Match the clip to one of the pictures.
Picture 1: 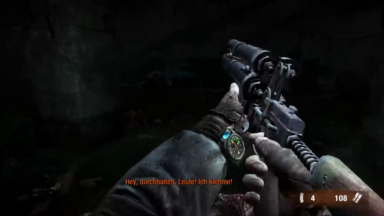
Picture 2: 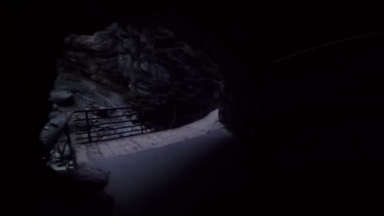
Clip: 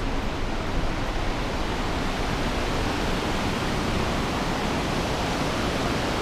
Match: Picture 2